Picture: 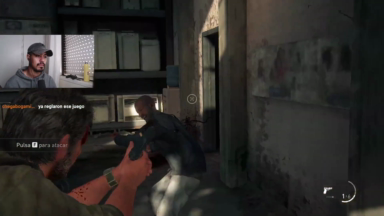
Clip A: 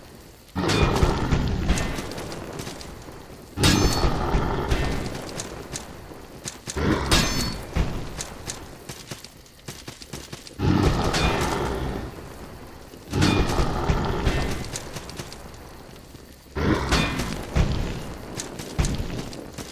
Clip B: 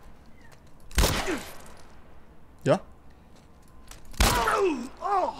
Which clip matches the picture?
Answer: B